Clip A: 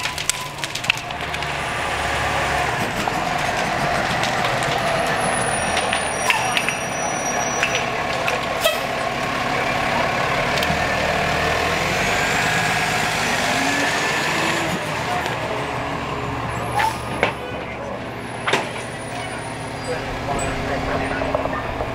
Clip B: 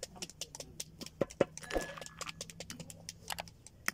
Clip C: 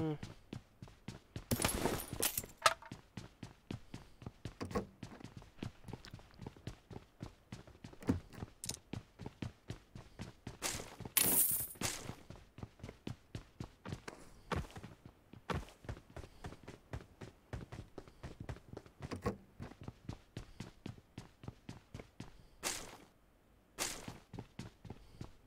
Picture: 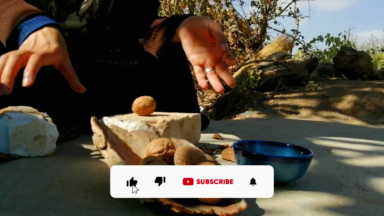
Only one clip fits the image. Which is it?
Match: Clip B